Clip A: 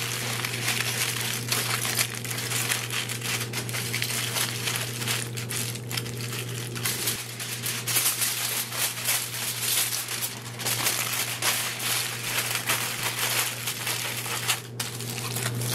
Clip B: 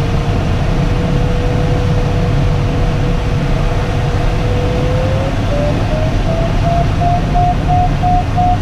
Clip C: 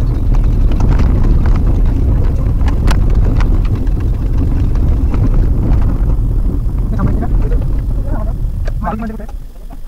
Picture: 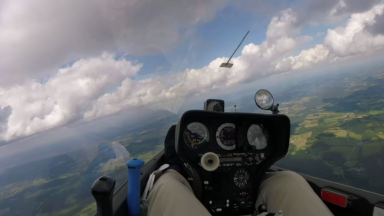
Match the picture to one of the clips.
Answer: B